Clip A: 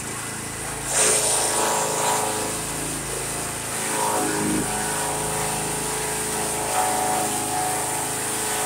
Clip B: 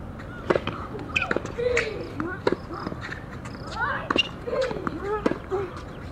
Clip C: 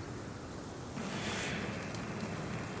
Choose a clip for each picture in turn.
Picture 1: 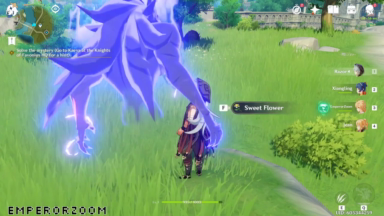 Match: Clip C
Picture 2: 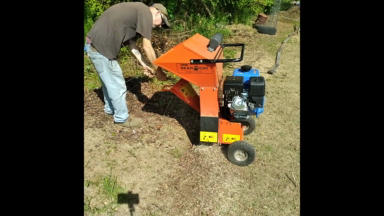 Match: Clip A